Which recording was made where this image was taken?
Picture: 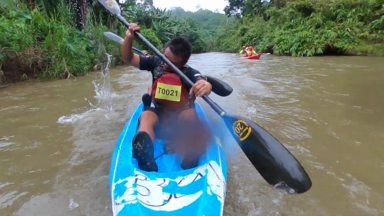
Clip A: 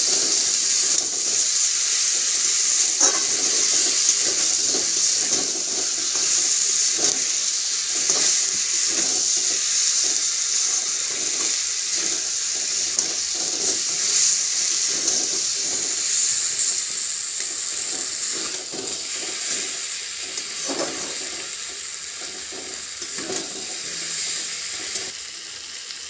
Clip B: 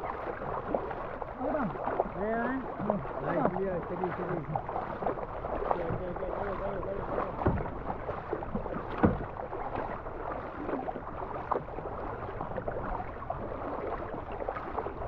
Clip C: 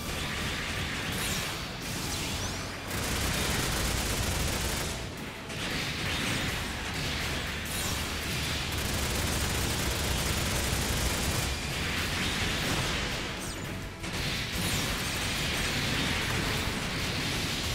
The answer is B